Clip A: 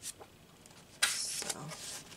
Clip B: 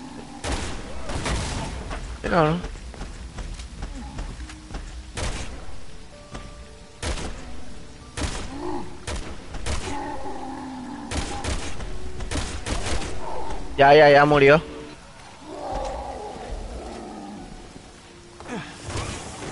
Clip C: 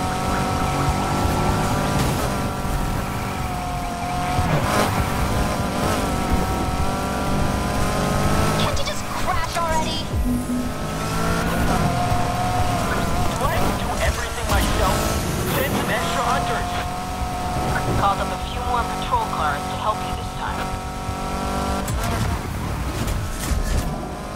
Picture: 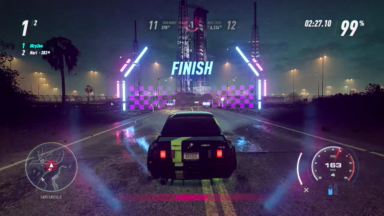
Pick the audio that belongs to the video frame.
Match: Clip C